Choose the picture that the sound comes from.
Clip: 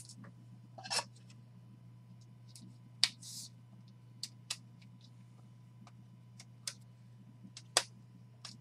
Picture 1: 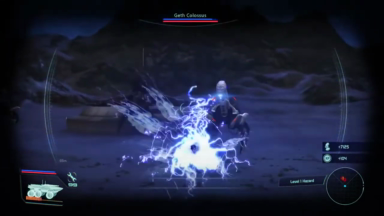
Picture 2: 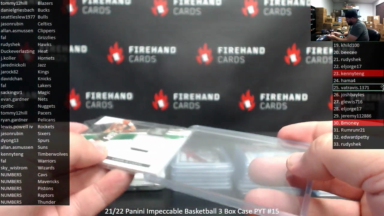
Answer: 2